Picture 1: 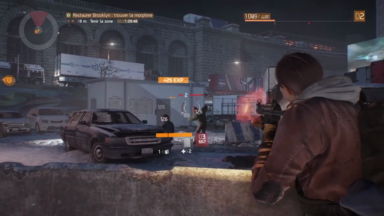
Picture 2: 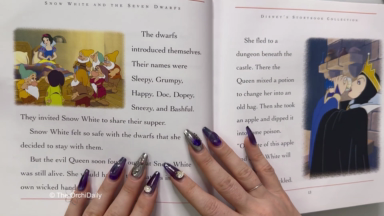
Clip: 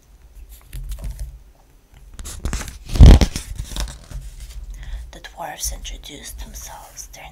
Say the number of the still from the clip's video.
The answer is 2